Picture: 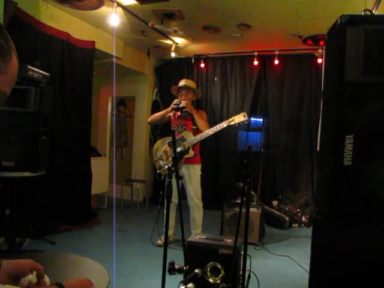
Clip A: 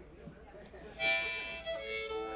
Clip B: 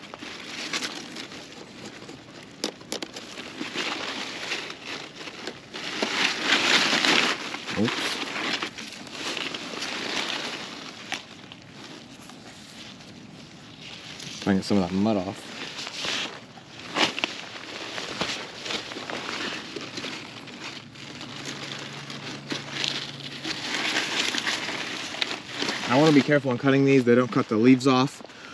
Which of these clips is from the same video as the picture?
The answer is A